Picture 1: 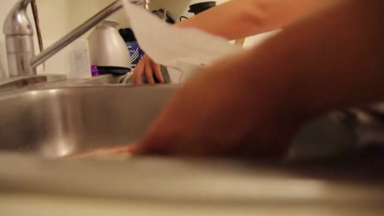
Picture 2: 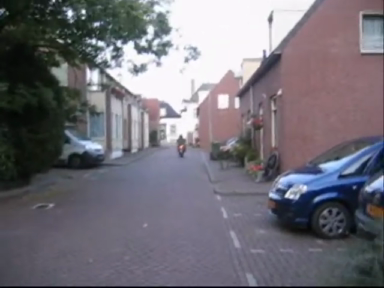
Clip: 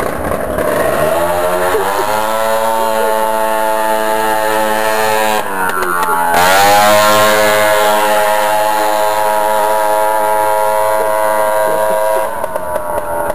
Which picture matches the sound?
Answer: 2